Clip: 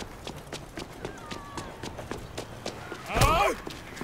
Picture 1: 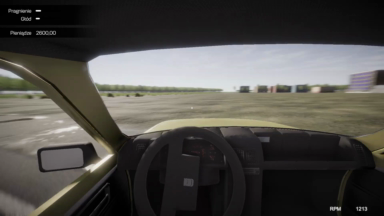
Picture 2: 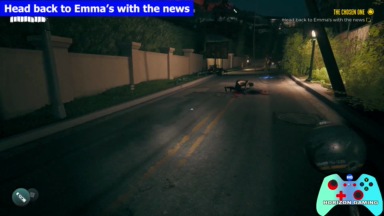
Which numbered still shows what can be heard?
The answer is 2